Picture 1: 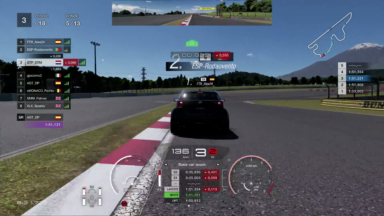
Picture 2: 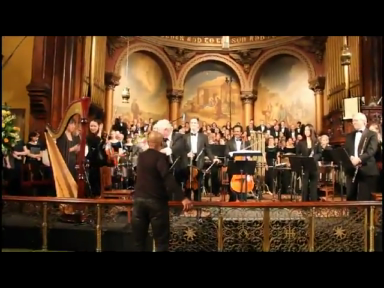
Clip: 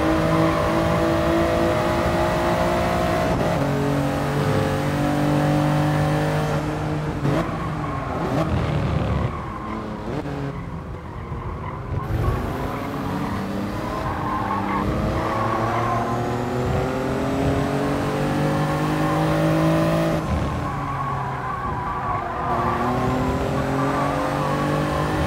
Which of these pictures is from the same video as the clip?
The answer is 1